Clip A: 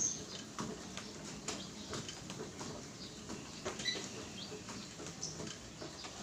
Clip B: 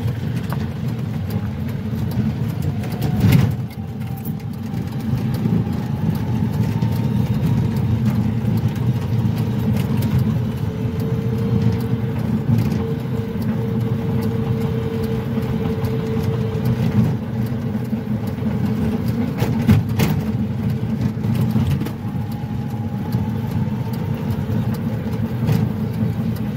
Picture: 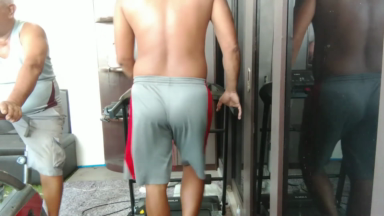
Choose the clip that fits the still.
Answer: A